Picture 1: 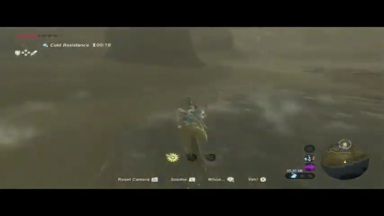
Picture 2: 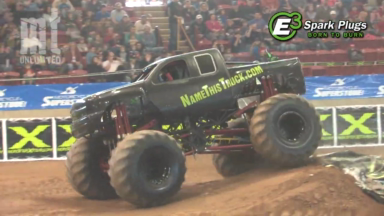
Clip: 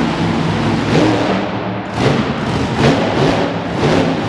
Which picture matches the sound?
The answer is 2